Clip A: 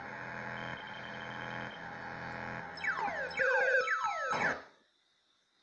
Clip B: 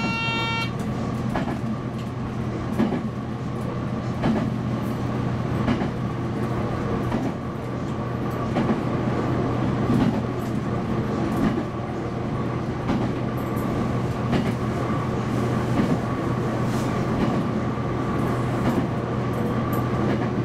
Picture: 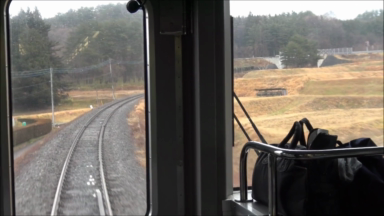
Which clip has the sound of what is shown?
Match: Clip B